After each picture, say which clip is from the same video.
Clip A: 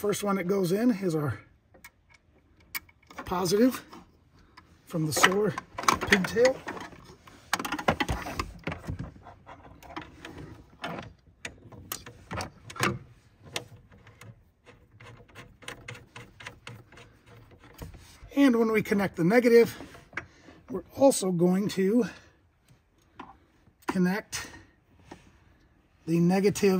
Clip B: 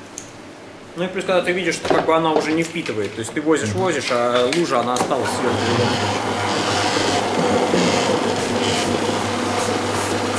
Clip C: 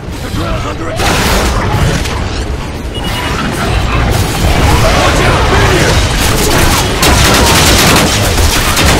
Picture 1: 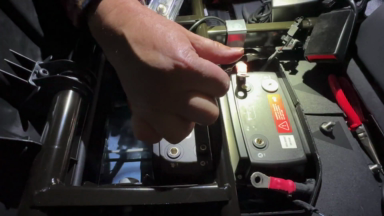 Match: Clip A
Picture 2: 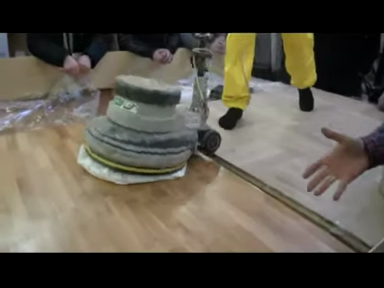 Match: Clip B